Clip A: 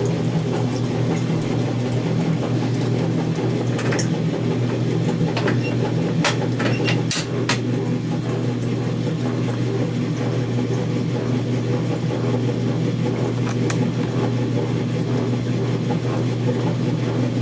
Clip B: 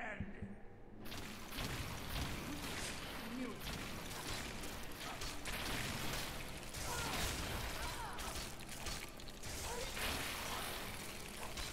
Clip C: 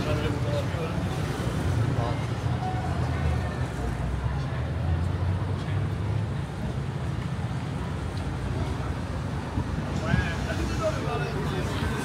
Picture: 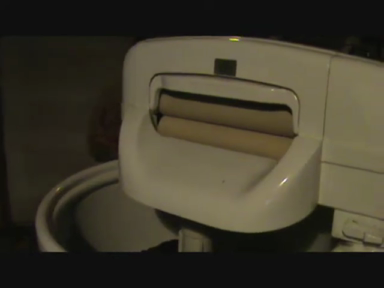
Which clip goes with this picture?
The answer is A